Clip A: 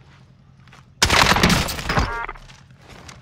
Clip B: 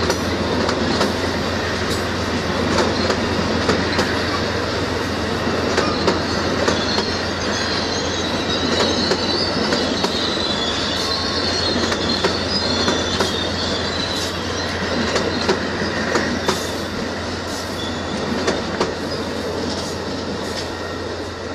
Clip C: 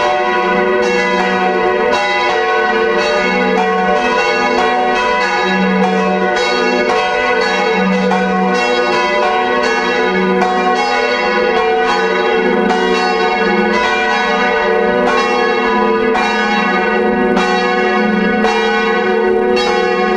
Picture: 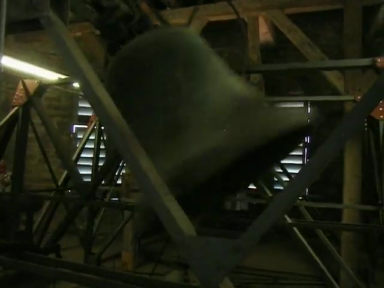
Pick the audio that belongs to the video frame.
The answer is C